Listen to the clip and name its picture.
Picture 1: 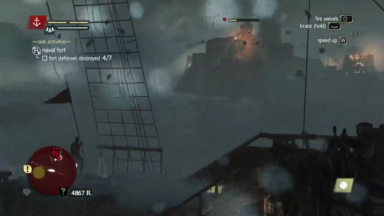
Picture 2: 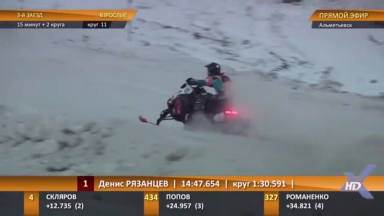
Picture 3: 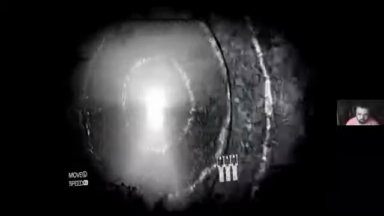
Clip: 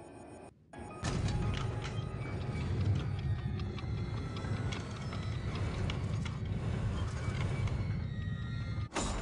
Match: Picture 3